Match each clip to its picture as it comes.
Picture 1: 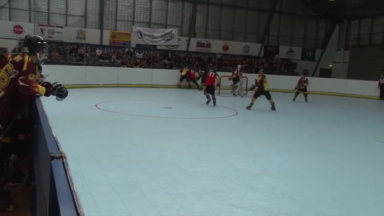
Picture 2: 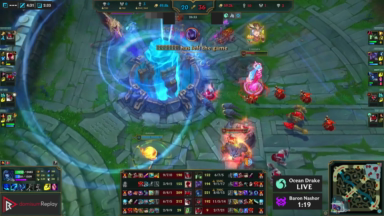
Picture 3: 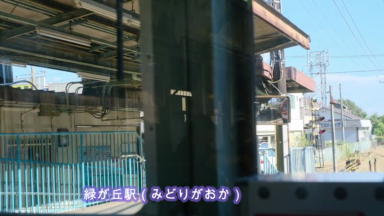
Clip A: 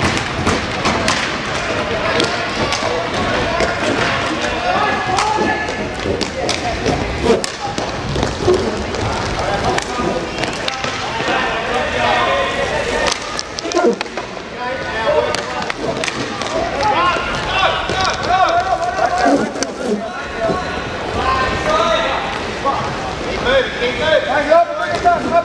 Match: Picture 1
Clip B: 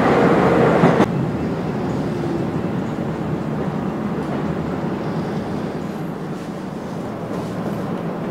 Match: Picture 3